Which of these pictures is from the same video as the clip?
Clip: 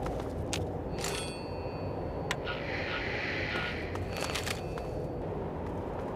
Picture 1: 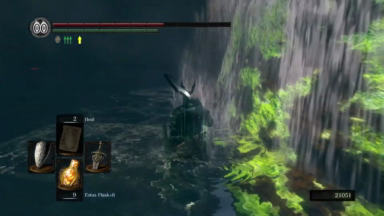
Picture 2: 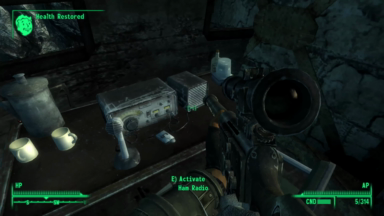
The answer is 2